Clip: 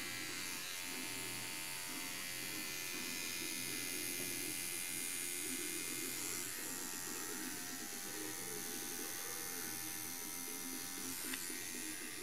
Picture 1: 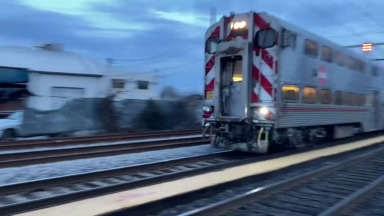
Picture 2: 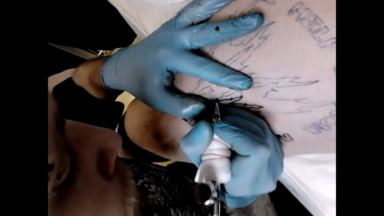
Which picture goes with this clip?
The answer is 2